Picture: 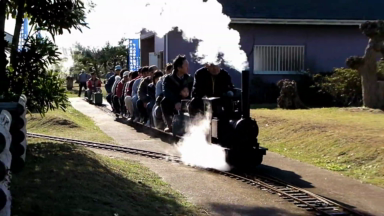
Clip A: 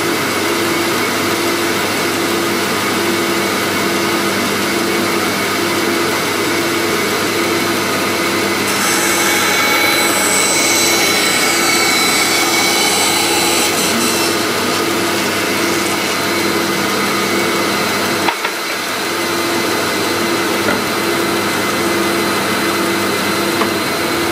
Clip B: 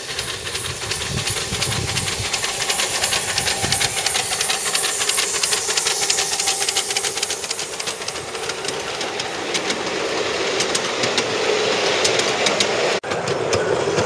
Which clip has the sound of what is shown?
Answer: B